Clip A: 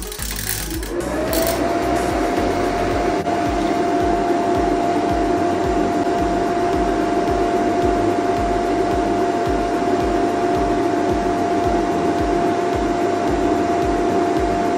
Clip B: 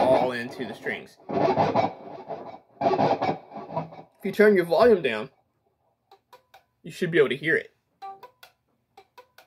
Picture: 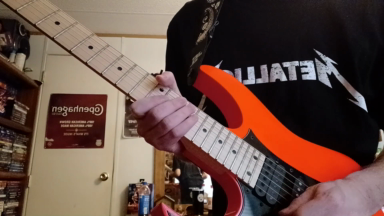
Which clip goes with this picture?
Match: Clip B